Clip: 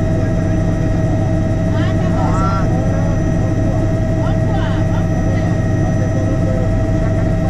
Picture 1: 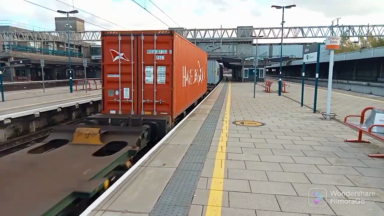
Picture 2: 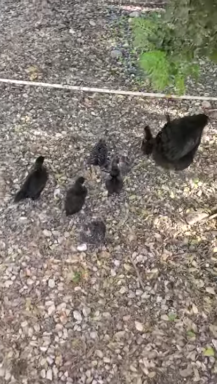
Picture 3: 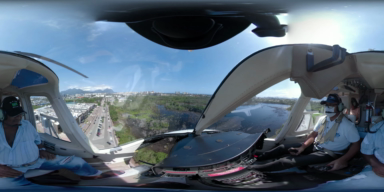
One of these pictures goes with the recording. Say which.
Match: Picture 3